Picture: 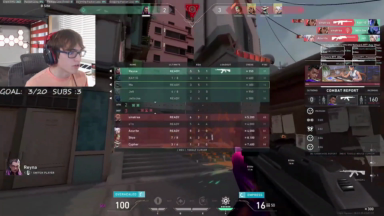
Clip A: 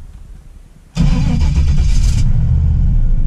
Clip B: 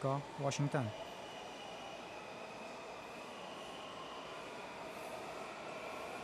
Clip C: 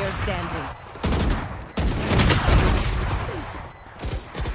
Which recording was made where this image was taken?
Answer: C